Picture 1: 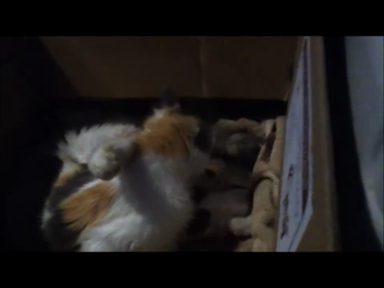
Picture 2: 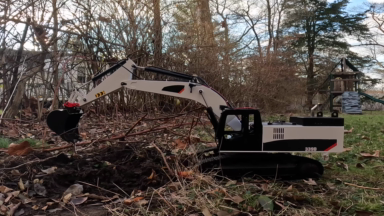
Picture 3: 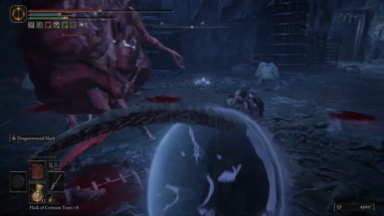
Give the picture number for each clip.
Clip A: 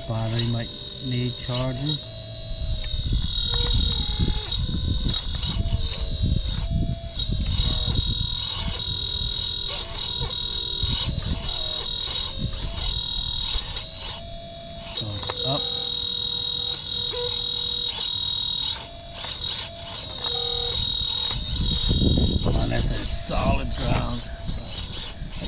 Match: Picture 2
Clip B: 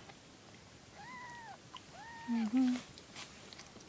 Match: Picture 1